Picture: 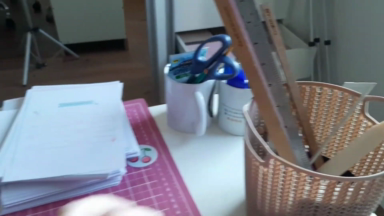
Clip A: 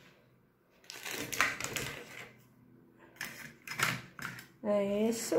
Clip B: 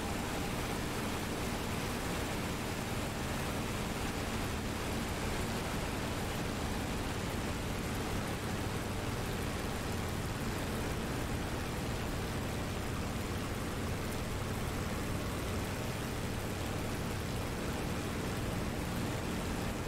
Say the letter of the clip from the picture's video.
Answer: A